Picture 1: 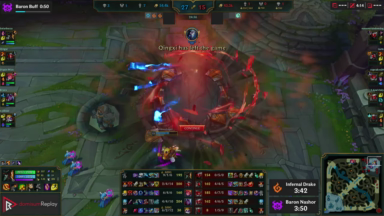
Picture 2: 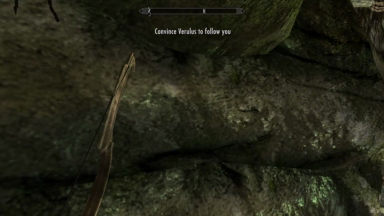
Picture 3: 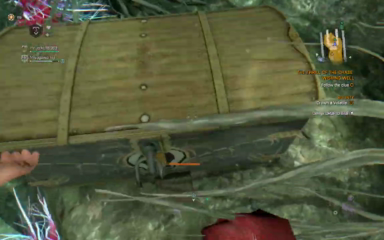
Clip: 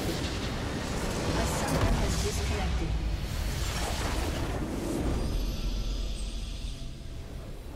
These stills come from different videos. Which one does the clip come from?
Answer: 1